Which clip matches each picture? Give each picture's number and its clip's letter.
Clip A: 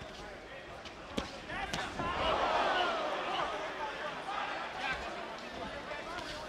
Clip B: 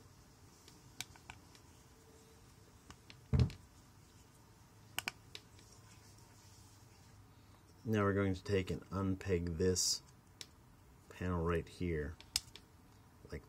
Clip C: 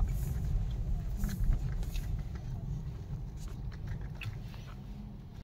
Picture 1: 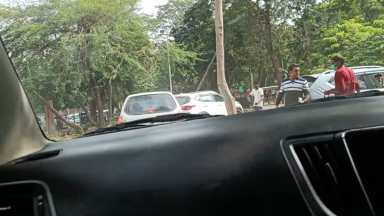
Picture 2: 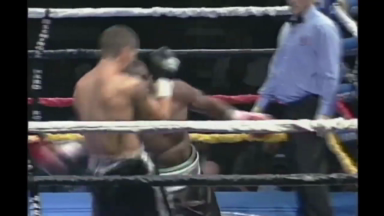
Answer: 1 C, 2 A